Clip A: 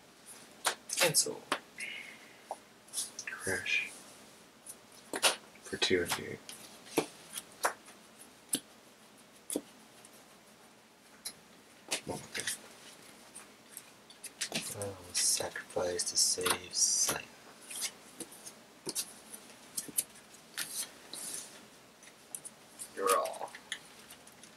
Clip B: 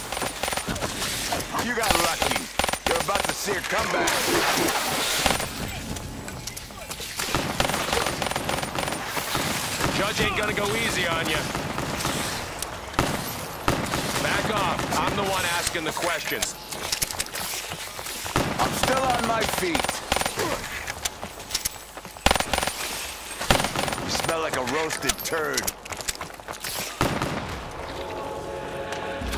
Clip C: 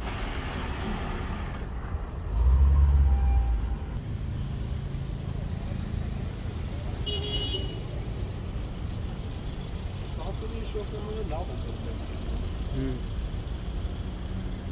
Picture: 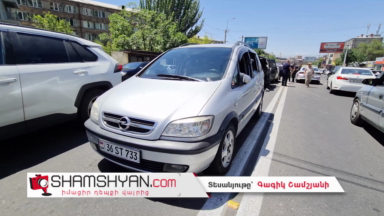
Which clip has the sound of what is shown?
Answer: C